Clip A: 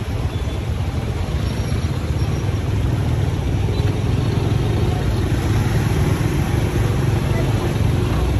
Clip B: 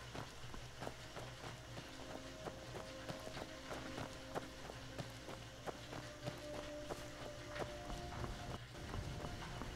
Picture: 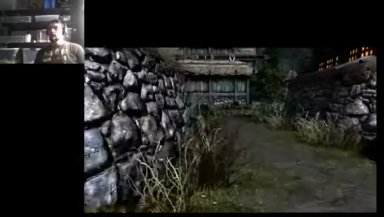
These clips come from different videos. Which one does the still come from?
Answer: B